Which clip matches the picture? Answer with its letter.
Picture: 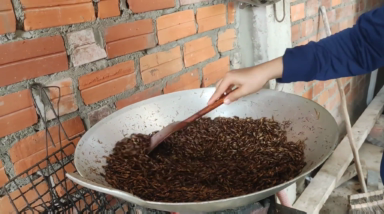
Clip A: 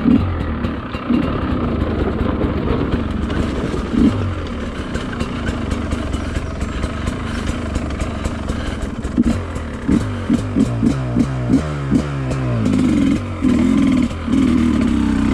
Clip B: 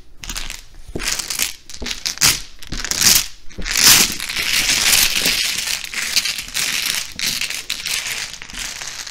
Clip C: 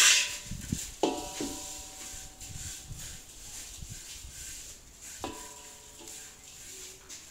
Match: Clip C